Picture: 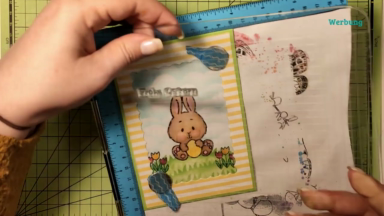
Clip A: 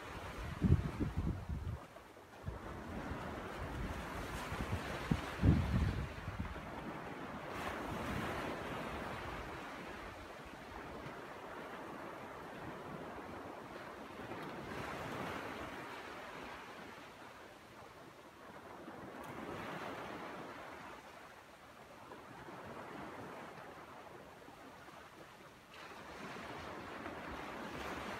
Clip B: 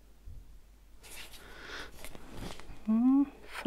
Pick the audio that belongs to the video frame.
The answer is B